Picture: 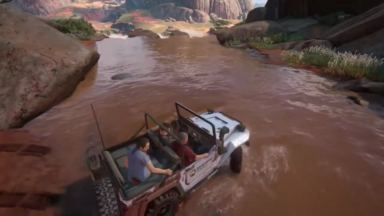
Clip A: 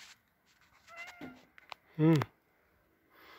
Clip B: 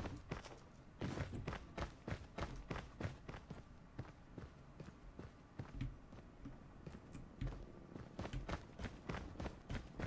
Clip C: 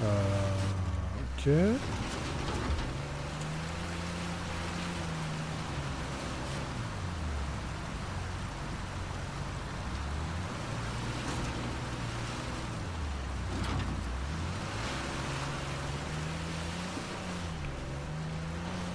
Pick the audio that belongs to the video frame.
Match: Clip C